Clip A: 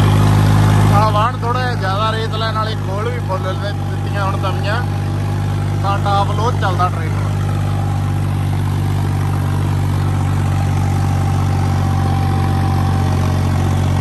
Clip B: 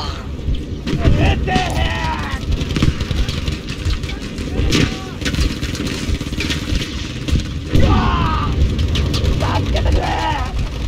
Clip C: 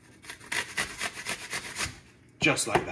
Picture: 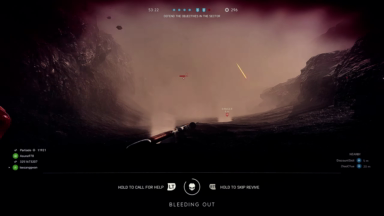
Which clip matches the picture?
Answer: B